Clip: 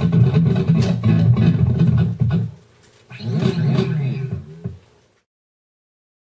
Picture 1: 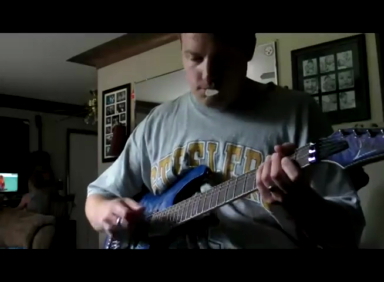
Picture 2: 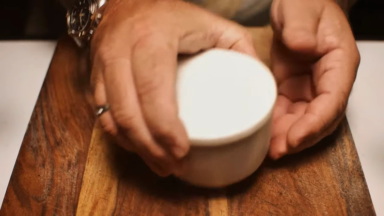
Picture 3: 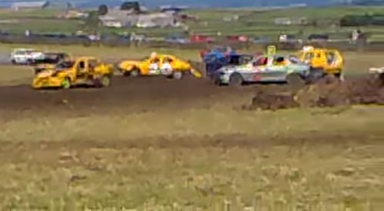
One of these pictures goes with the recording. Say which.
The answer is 1